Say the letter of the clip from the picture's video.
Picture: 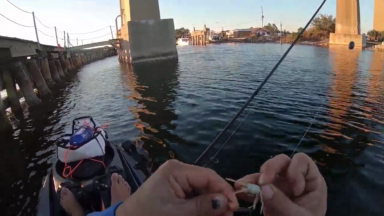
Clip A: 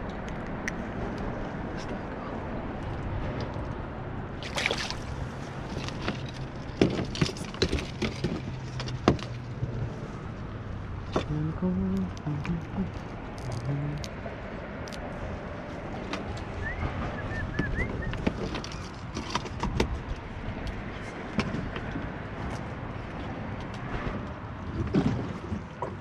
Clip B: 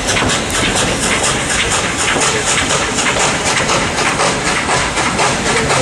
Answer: A